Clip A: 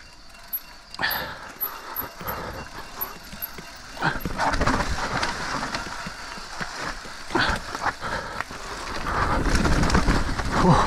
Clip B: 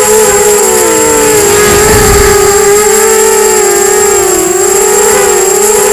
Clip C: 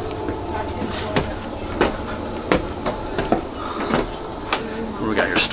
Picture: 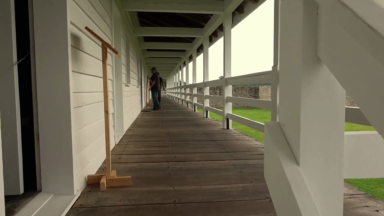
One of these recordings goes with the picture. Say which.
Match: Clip C